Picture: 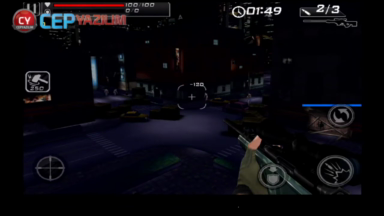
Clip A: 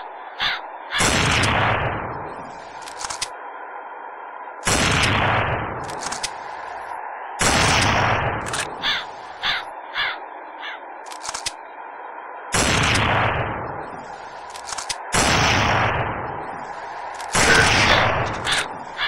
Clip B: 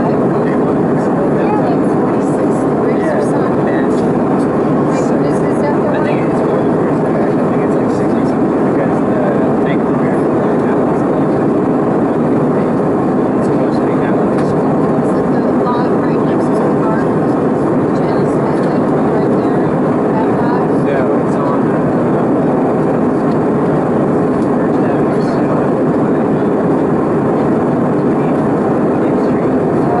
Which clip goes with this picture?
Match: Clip A